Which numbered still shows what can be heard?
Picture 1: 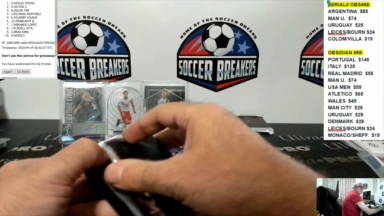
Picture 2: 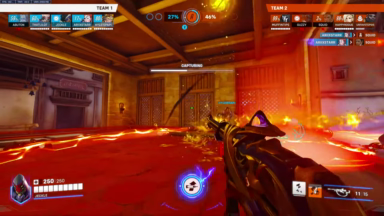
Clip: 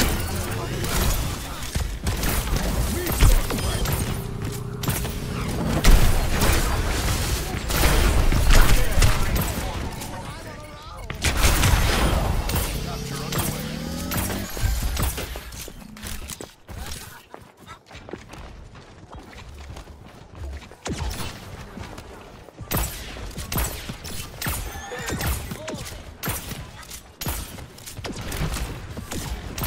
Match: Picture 2